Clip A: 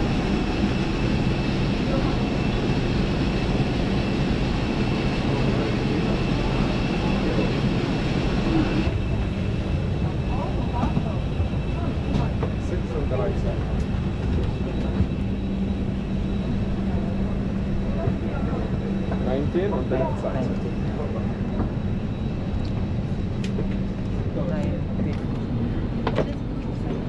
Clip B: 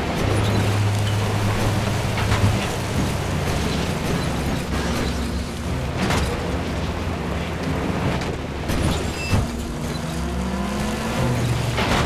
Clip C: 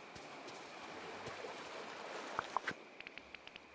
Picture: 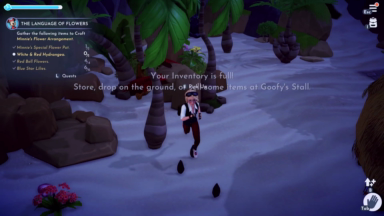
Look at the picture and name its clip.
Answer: C